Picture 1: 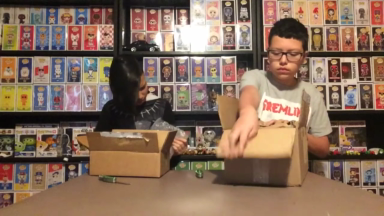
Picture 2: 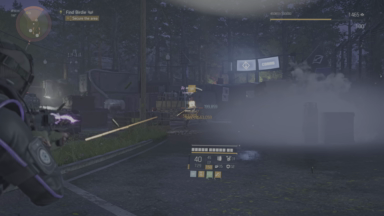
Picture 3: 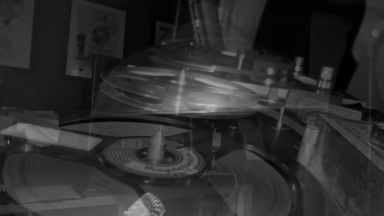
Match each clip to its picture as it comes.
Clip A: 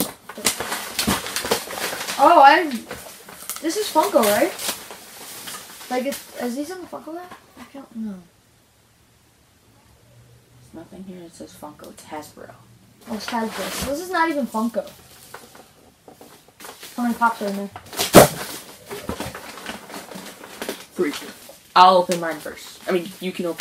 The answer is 1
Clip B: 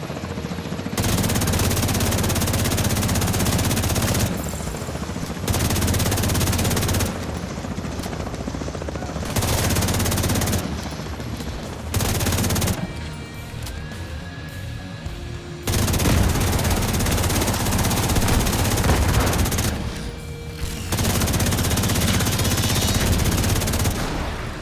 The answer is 2